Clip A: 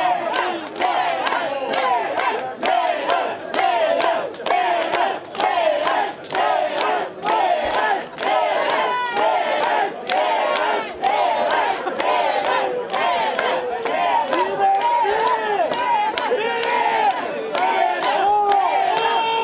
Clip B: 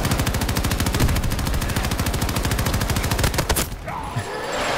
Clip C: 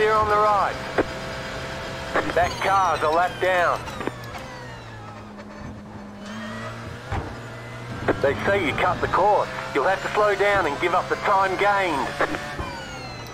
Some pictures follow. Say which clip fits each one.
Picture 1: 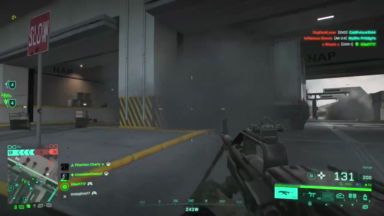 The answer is B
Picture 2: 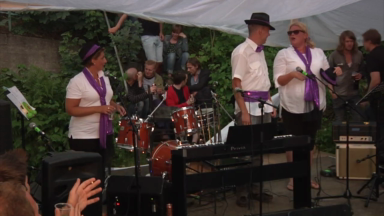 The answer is A